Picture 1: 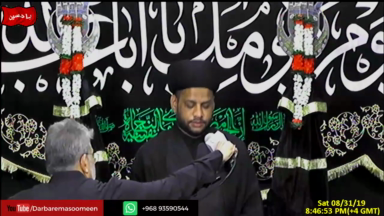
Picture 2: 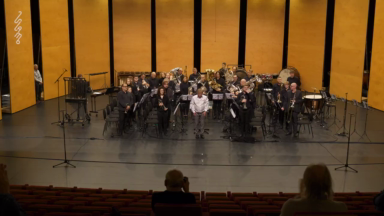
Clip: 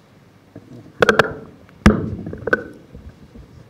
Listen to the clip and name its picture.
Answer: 1